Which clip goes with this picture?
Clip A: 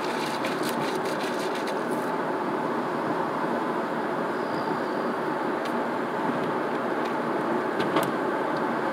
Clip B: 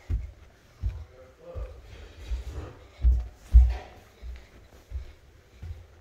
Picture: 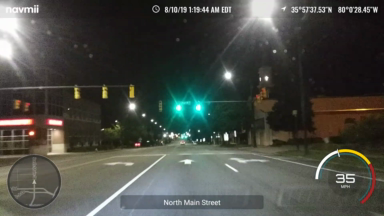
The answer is A